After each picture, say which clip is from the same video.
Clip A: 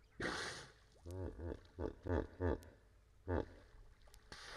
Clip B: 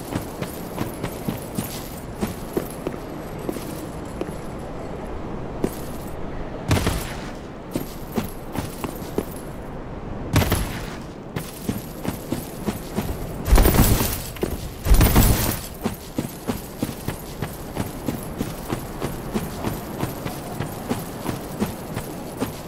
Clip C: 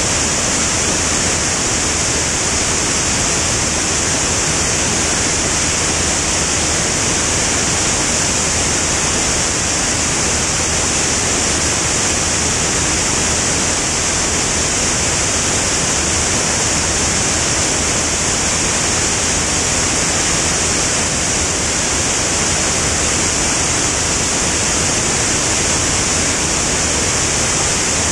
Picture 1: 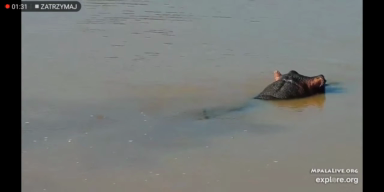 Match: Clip A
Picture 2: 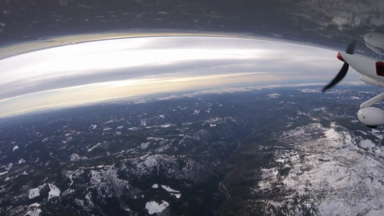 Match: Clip C